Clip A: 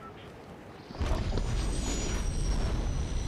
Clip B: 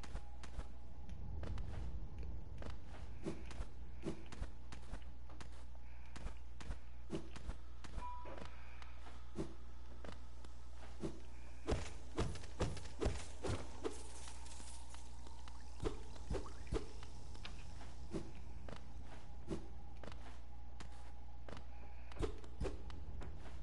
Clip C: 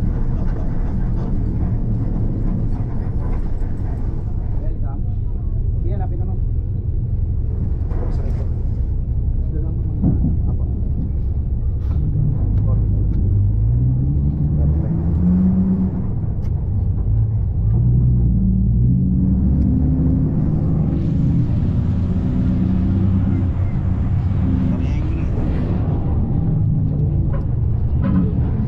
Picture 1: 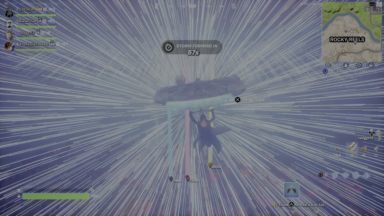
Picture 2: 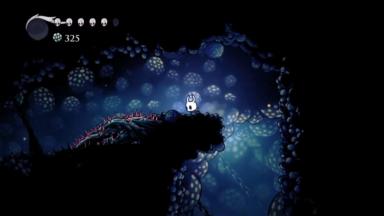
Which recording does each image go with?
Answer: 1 A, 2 B